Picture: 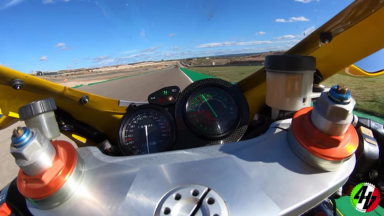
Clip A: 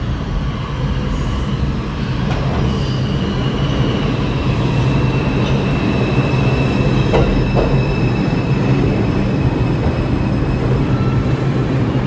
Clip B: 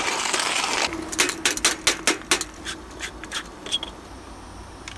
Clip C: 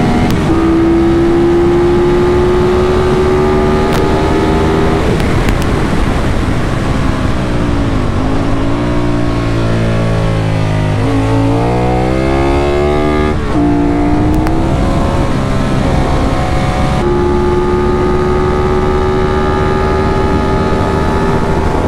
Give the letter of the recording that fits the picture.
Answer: C